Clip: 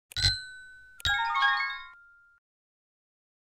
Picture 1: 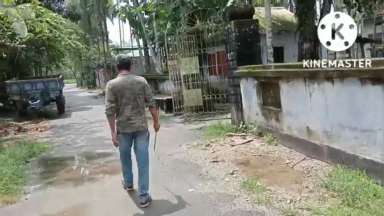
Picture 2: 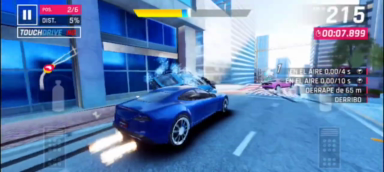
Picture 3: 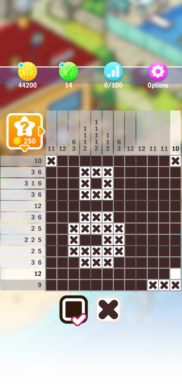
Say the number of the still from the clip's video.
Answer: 3